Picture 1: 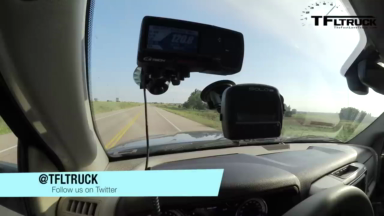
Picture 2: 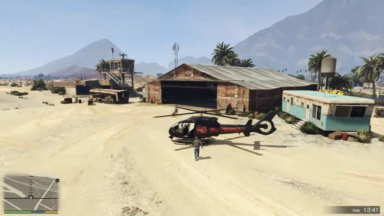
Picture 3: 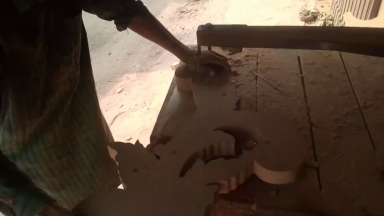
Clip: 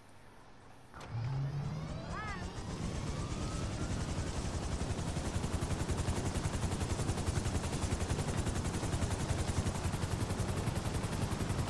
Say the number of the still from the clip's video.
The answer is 2